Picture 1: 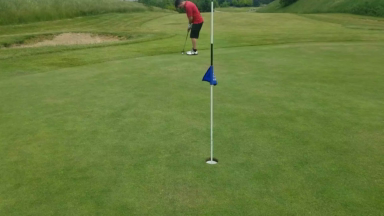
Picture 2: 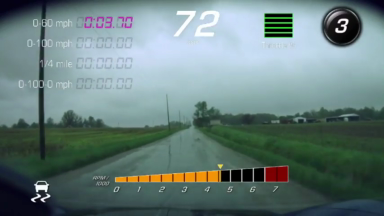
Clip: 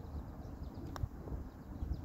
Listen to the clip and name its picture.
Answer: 1